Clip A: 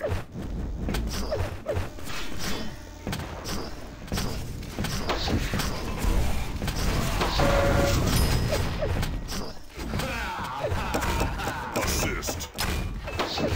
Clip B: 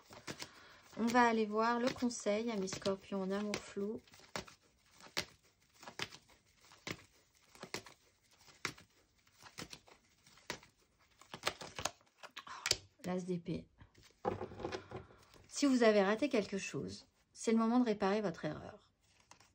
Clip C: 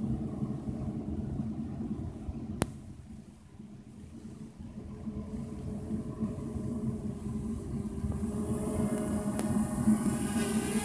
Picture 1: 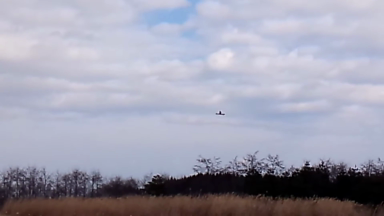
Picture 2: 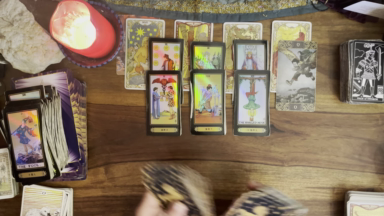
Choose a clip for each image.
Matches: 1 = C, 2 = B